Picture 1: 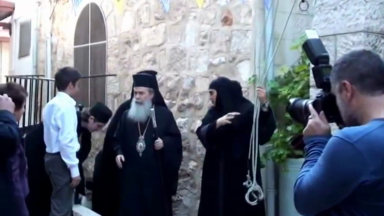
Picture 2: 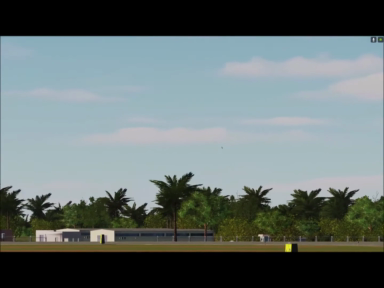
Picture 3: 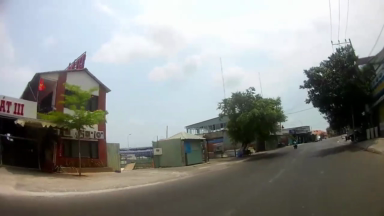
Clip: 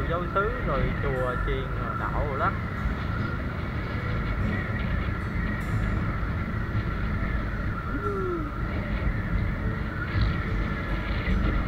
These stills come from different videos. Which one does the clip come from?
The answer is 3